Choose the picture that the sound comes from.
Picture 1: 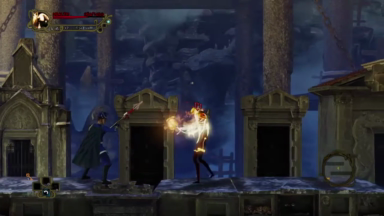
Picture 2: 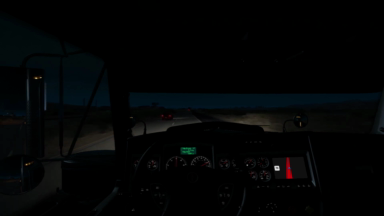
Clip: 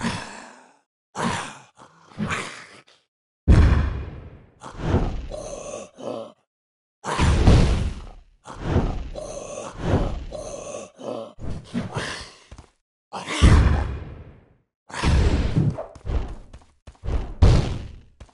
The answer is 1